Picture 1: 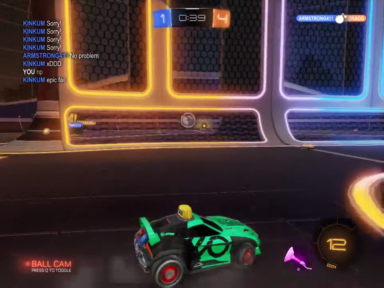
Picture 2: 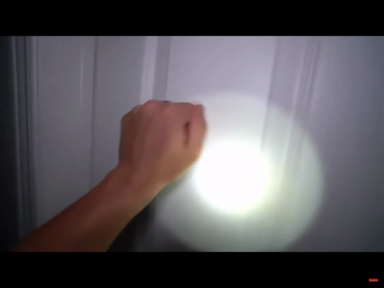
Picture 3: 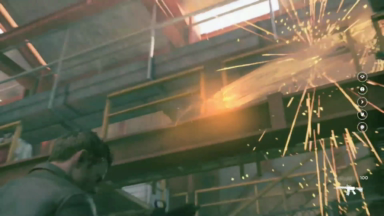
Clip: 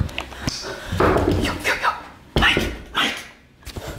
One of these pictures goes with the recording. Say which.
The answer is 2